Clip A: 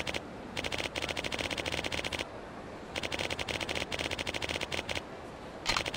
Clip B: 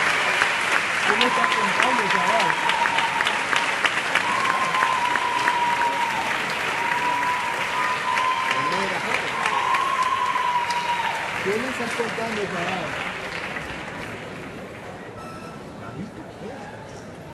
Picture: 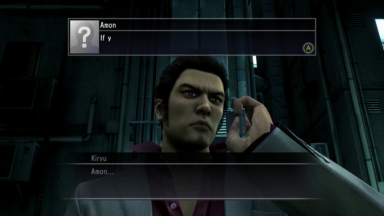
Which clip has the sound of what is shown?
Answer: A